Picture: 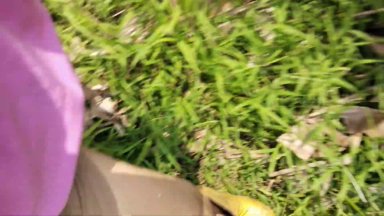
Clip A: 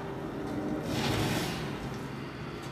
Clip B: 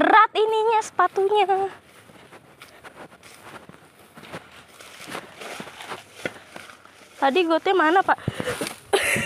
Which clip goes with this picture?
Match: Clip B